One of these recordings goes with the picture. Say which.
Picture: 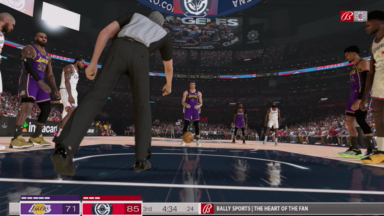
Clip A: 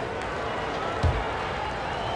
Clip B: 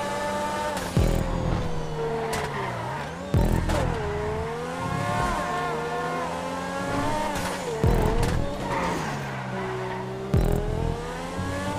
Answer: A